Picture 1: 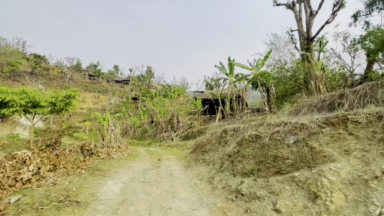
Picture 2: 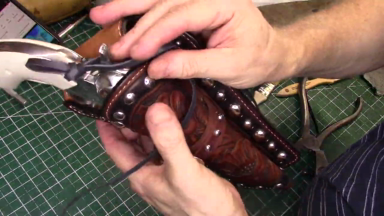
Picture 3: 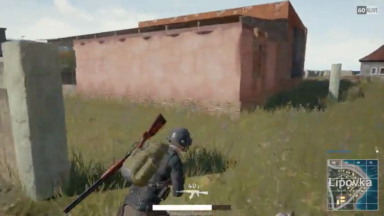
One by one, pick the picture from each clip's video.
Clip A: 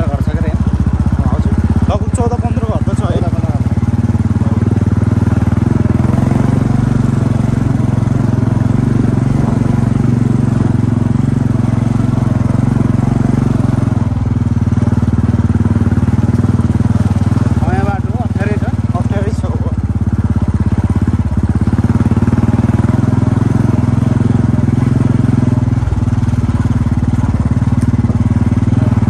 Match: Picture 1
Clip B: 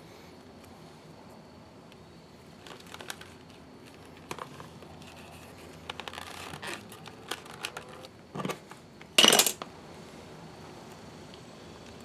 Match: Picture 2